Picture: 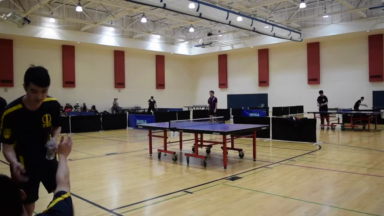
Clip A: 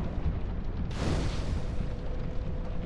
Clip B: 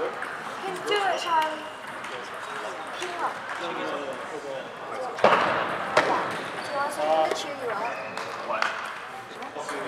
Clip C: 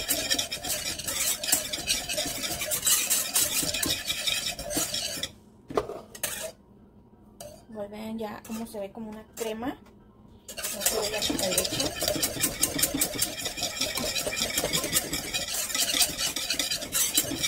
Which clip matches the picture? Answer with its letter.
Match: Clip B